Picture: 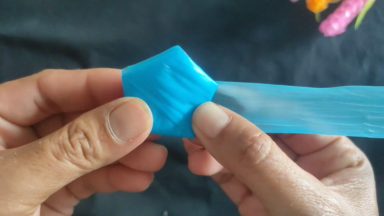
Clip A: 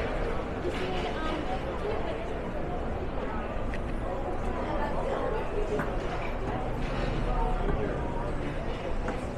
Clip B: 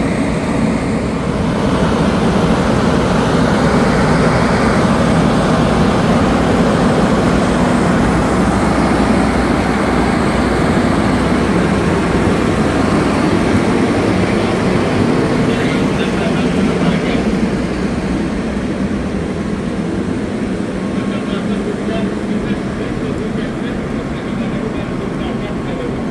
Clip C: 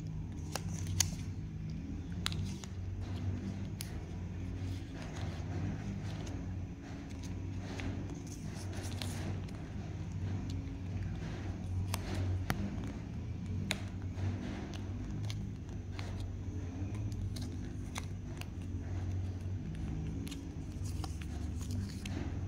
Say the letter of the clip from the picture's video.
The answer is C